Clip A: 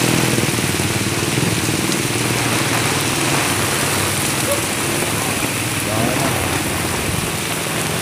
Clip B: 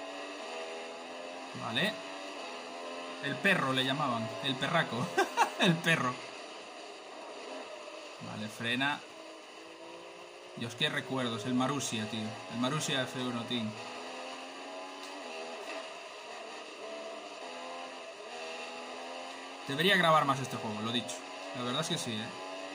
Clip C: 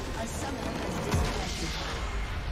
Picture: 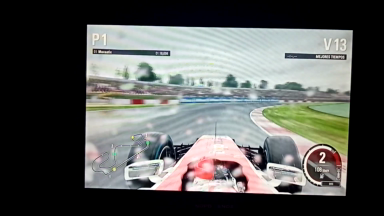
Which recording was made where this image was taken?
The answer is B